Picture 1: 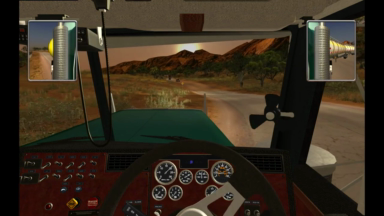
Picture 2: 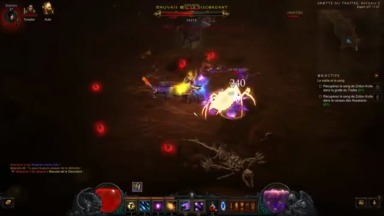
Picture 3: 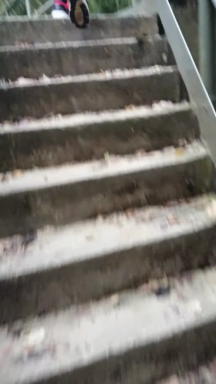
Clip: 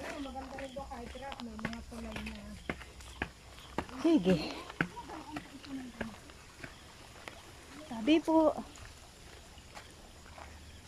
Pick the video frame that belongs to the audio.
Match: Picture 3